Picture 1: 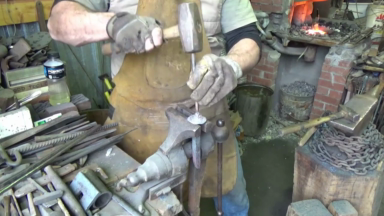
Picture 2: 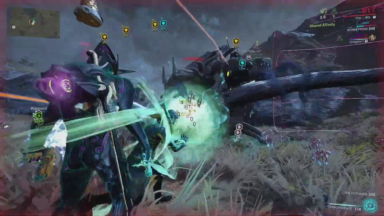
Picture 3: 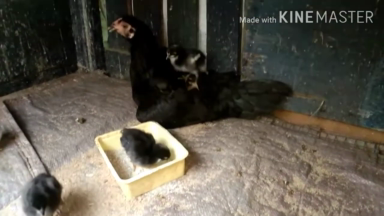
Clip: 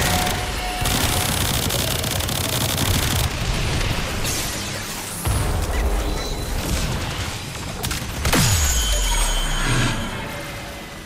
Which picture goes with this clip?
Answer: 2